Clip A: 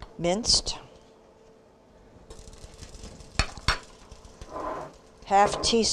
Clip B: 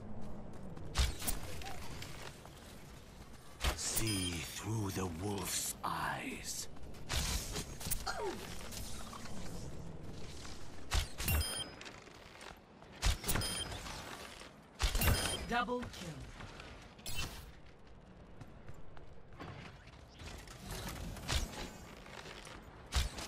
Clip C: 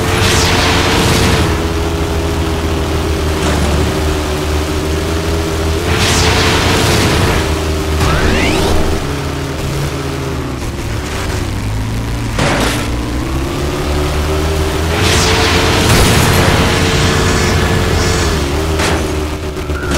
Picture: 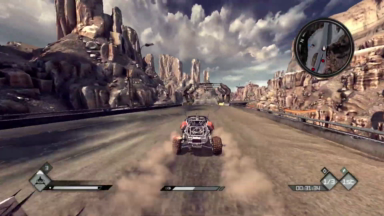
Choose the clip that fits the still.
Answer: C